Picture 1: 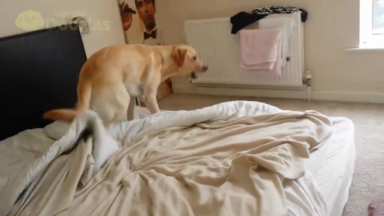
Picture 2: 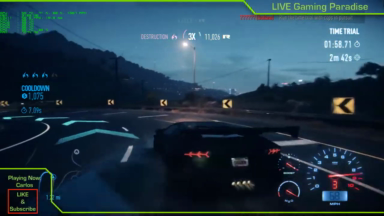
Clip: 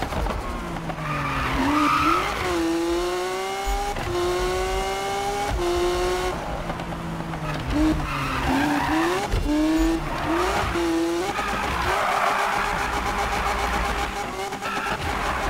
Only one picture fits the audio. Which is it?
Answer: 2